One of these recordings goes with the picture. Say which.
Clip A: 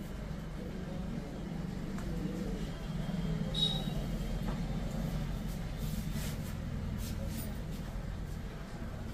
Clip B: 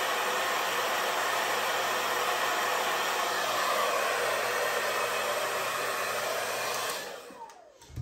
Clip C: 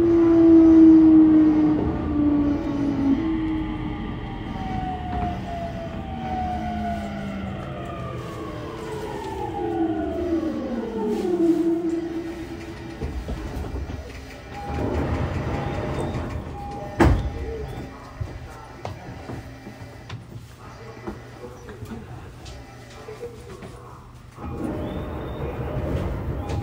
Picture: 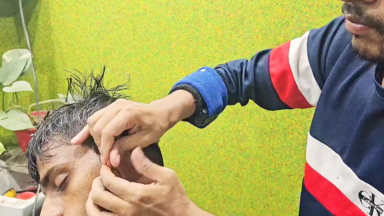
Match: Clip A